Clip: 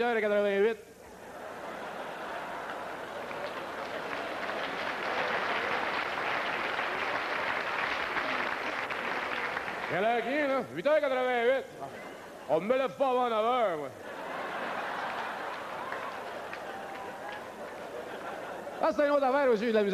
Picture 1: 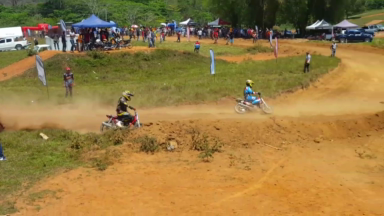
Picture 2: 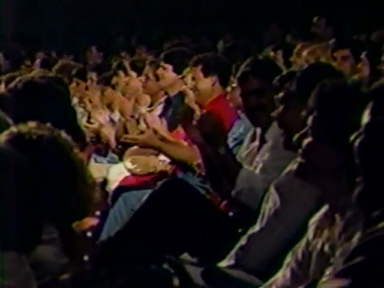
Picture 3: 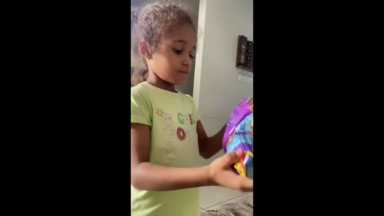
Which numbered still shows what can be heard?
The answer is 2